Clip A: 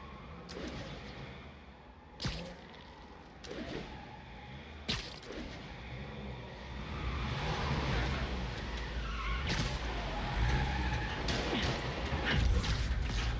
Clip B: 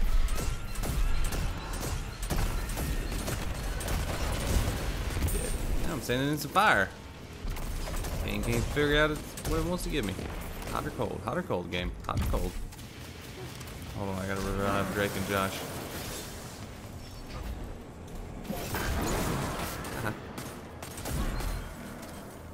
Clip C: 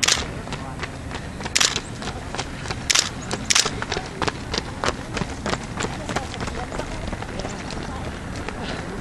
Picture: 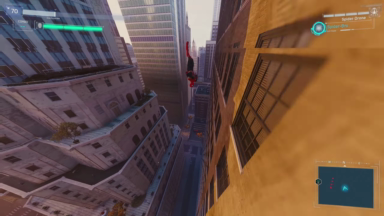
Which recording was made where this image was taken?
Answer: A